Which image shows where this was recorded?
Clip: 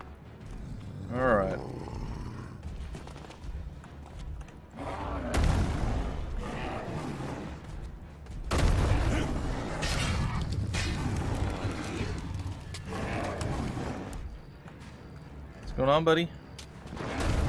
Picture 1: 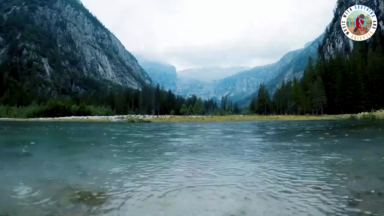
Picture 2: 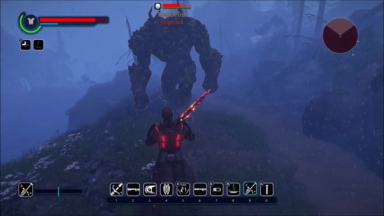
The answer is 2